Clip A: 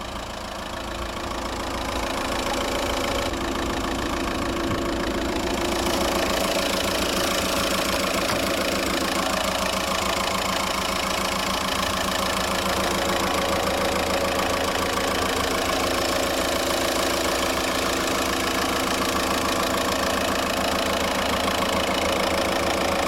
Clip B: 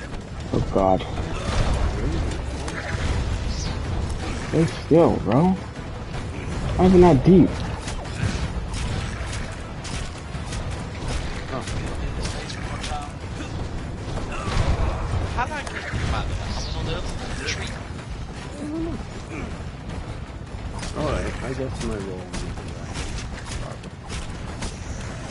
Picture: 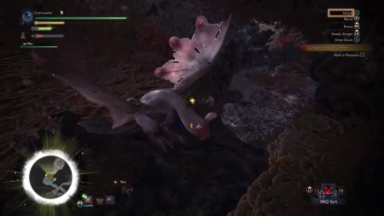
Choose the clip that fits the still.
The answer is B